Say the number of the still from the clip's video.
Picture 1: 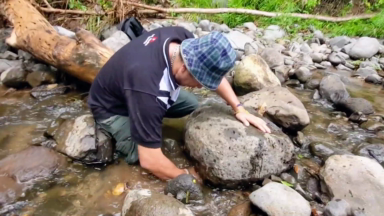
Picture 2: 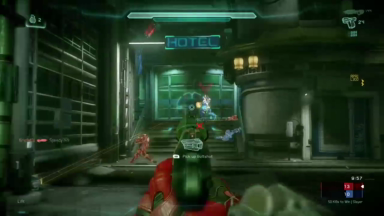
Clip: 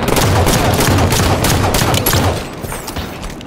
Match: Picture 2